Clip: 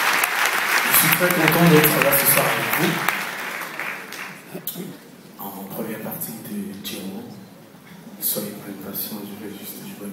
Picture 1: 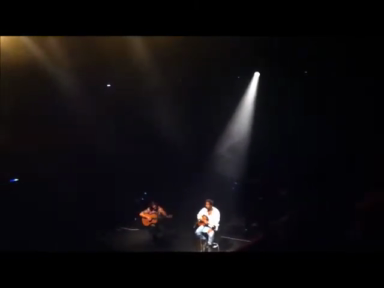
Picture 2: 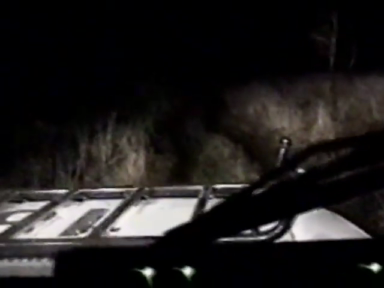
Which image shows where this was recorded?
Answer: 1